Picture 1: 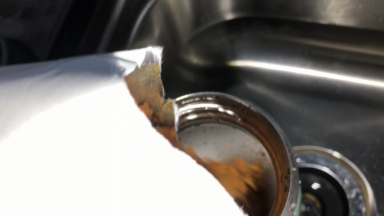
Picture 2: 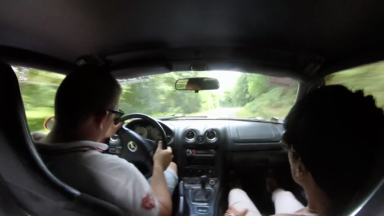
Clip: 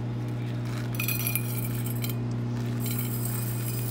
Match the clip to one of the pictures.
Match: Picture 1